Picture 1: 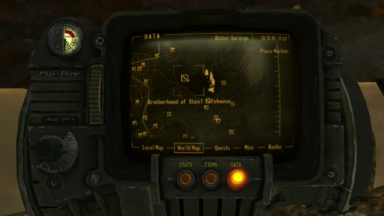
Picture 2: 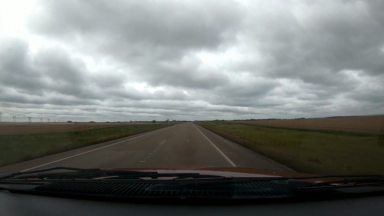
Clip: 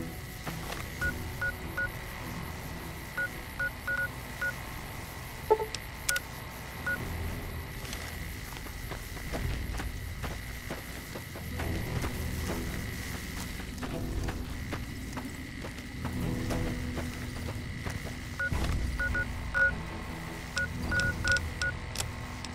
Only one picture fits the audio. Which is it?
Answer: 1